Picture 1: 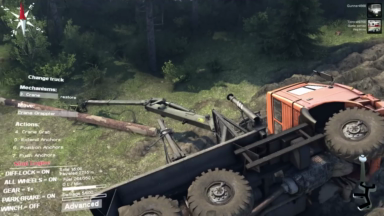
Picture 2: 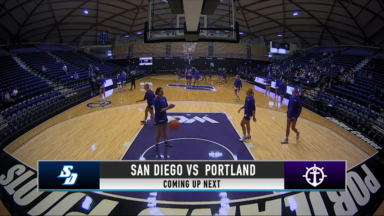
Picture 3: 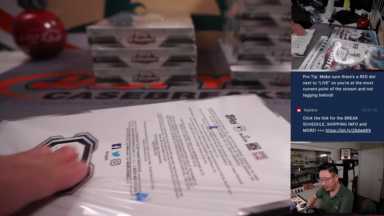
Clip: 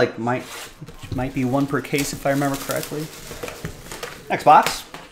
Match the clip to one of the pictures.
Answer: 3